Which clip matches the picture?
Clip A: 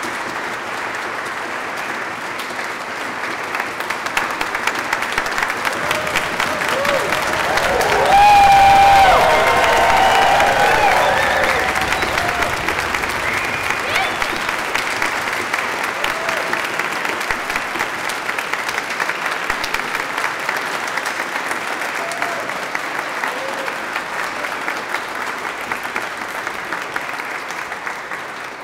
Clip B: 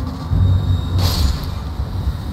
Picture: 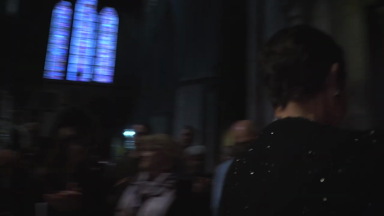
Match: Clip A